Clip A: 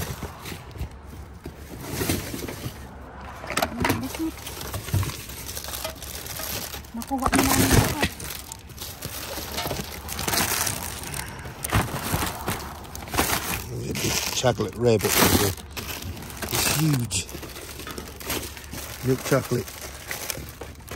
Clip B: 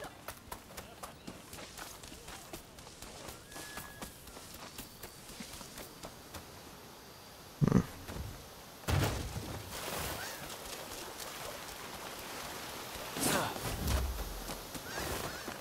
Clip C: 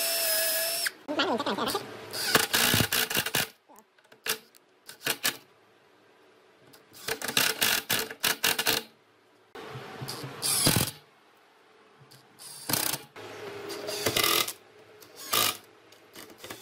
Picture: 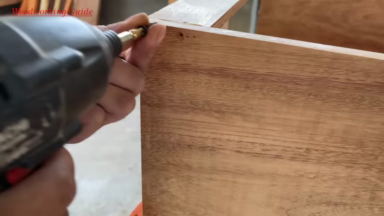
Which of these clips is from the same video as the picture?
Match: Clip C